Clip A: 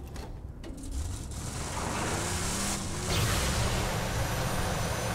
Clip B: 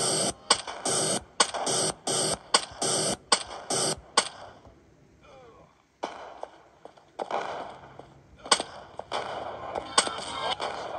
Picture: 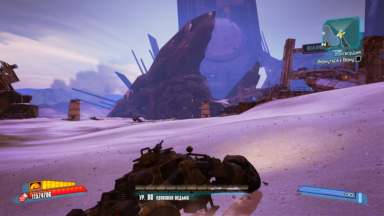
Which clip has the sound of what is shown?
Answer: A